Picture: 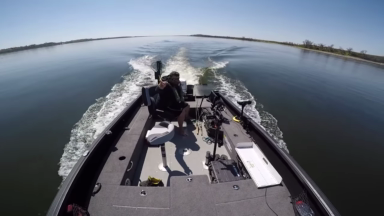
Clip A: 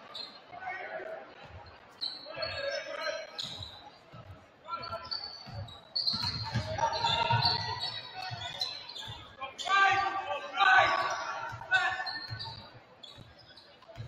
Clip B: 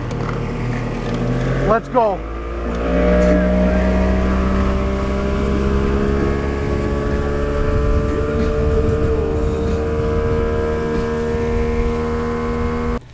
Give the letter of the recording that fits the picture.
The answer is B